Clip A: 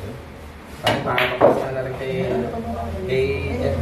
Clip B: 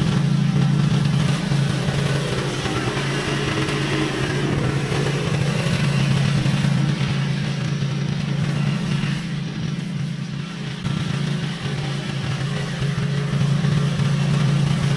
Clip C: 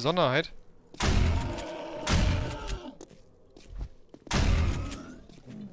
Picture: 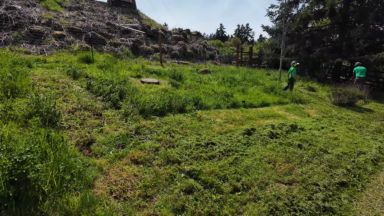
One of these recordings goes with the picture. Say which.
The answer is B